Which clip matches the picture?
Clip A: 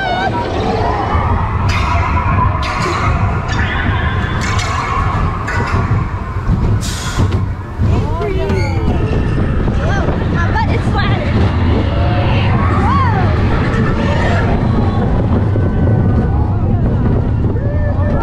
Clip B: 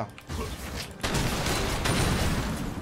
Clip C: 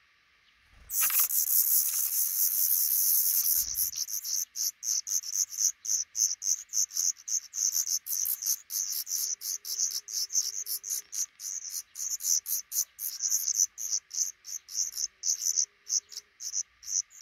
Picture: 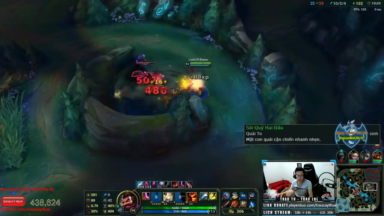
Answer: B